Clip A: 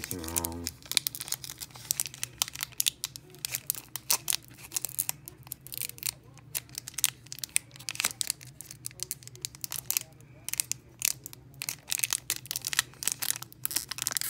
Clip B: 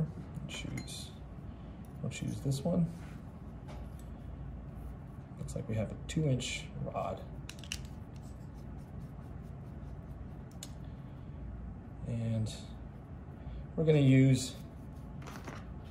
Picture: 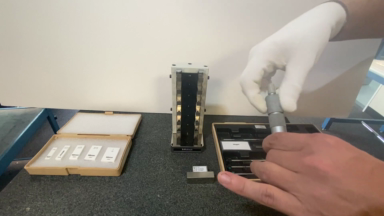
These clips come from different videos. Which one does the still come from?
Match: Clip B